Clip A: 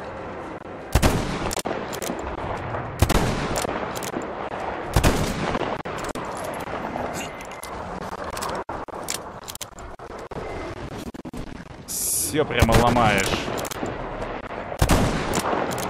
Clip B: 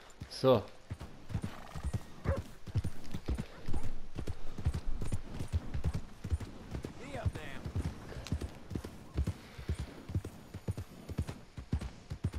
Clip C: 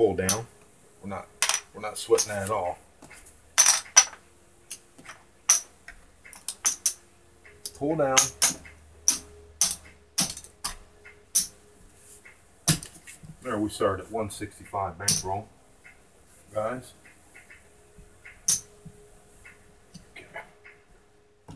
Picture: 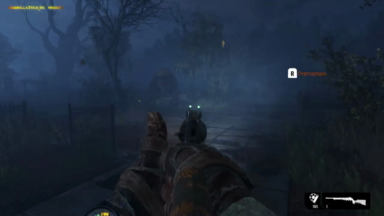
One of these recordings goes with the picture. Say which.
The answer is A